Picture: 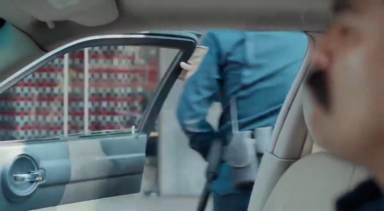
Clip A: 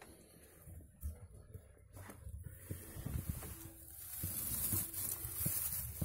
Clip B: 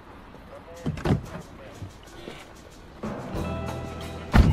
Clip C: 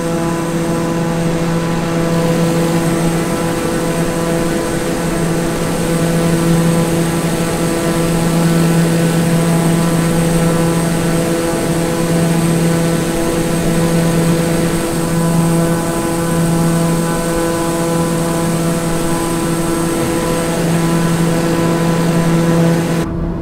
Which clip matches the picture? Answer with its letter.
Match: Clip B